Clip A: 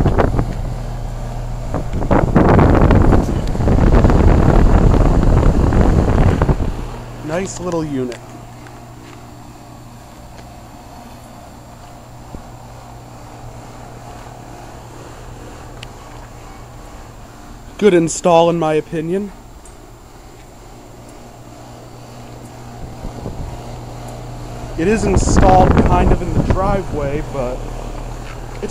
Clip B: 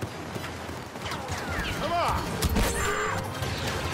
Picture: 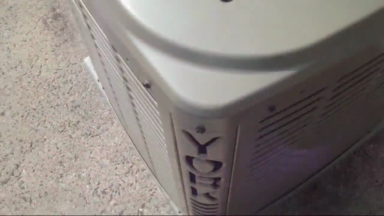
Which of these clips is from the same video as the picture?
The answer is A